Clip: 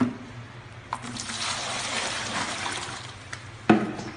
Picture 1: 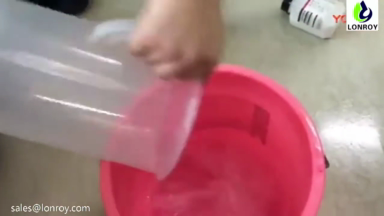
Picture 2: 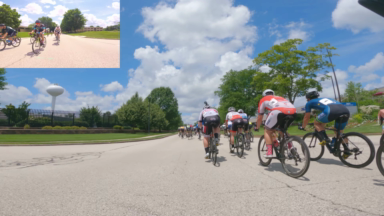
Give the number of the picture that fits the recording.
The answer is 1